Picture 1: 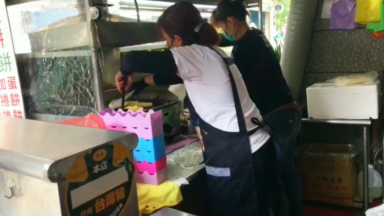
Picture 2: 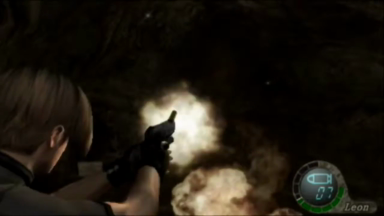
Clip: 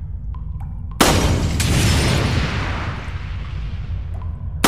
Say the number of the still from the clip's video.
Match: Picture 2